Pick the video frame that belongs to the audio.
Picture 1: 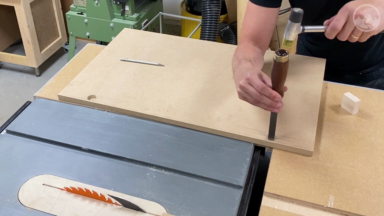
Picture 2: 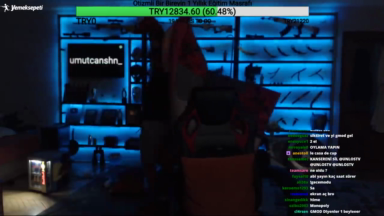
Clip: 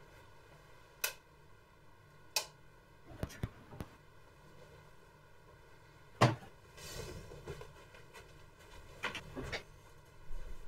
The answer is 2